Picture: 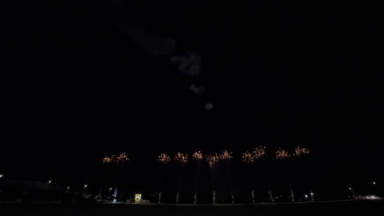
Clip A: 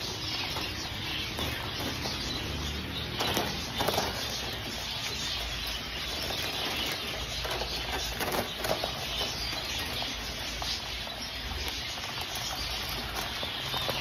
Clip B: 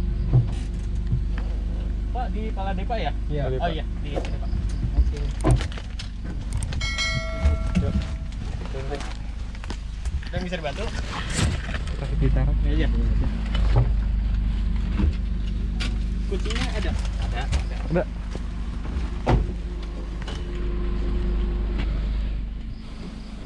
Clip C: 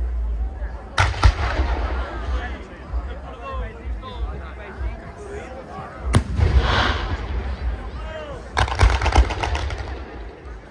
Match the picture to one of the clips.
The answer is C